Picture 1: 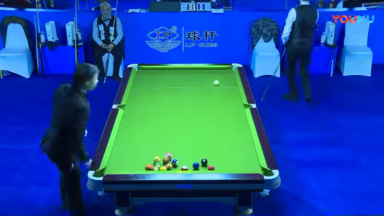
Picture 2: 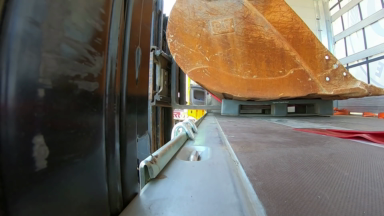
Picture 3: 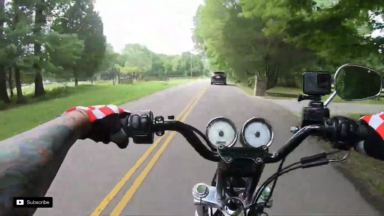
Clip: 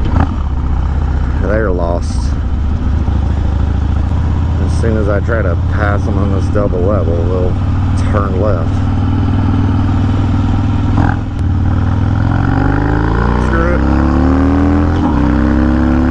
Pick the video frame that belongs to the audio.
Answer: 3